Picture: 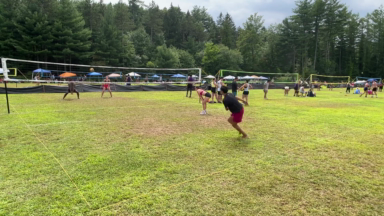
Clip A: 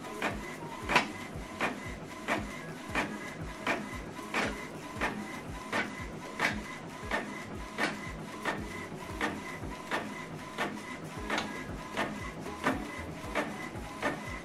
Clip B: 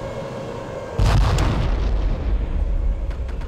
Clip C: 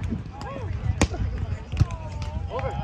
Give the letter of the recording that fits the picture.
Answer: C